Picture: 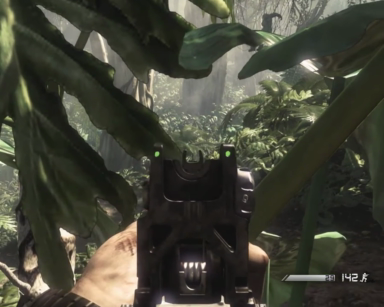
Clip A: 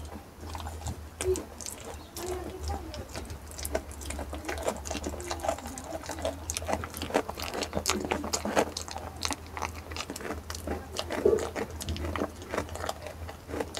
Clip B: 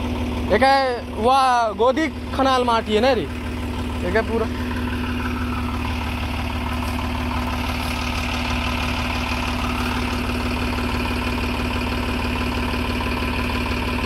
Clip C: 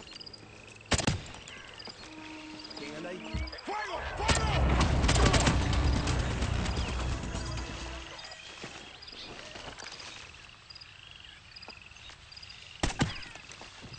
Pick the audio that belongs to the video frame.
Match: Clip C